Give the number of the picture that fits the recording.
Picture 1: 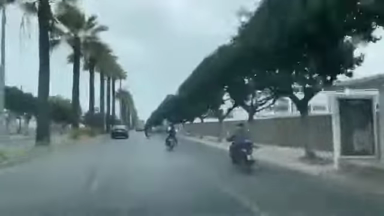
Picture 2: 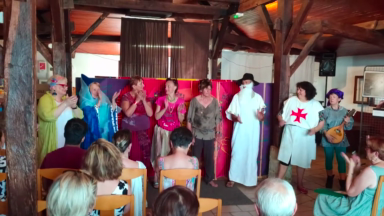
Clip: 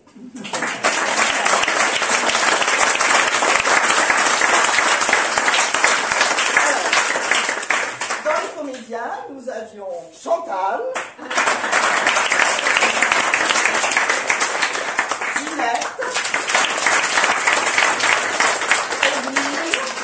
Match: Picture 2